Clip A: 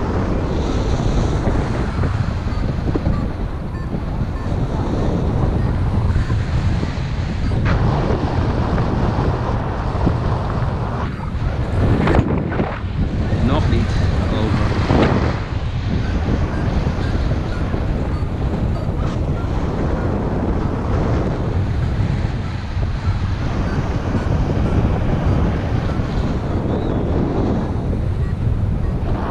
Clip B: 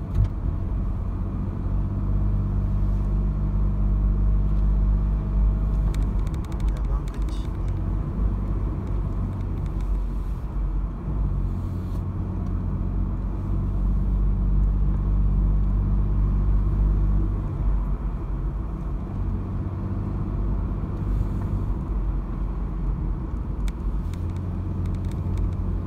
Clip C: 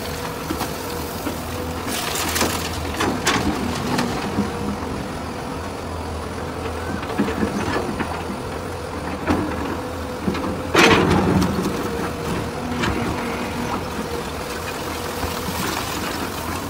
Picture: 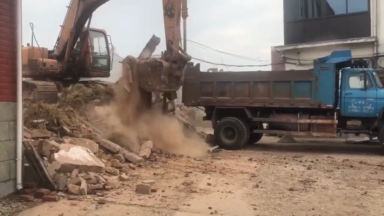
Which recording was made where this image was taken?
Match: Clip C